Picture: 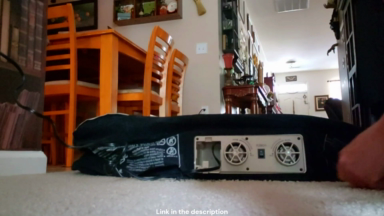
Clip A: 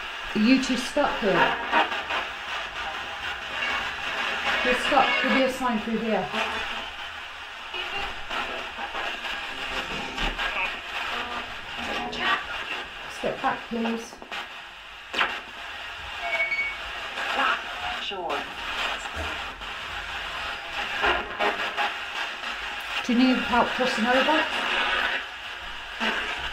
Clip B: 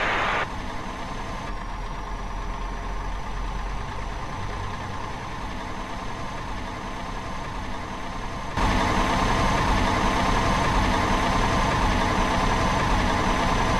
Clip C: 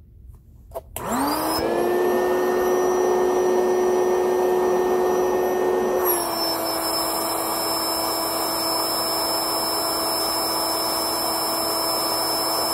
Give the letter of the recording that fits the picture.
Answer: C